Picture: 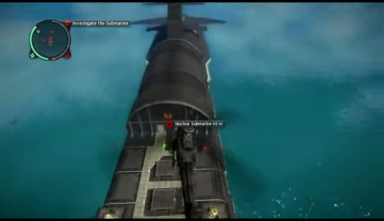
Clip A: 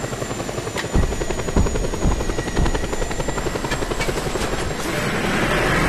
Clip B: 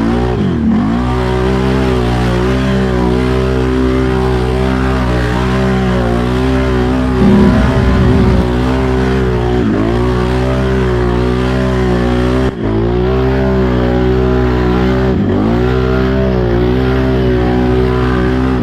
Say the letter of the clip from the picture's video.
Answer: A